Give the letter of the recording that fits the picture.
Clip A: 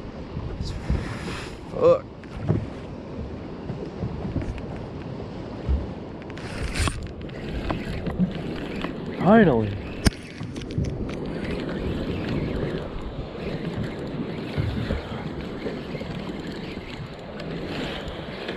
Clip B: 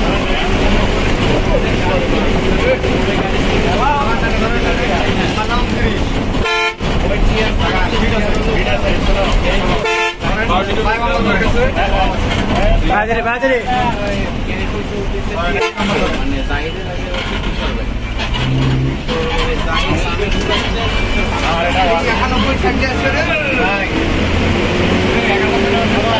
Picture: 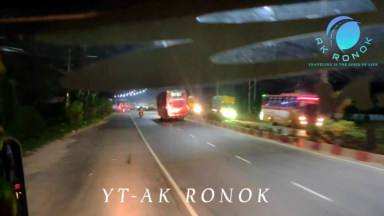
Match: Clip B